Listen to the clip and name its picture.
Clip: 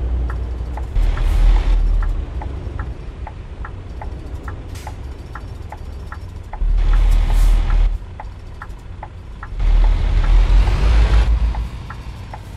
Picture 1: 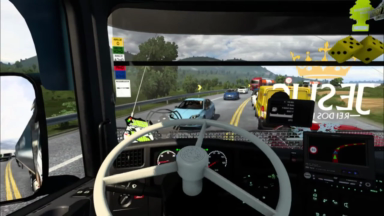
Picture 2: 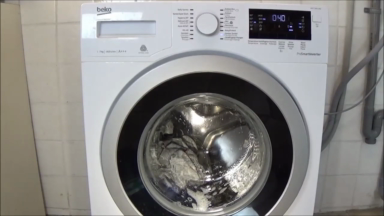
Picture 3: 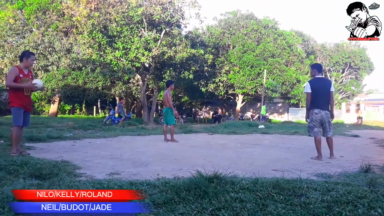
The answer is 1